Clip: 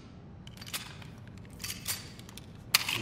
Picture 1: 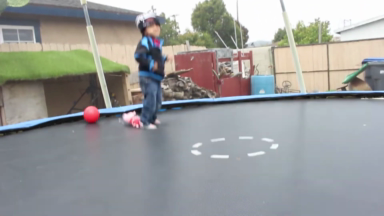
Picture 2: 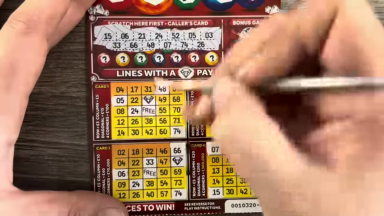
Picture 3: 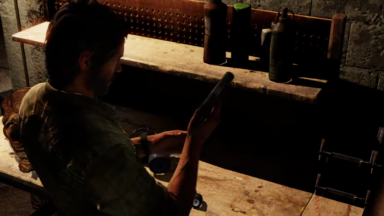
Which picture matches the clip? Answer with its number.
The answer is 3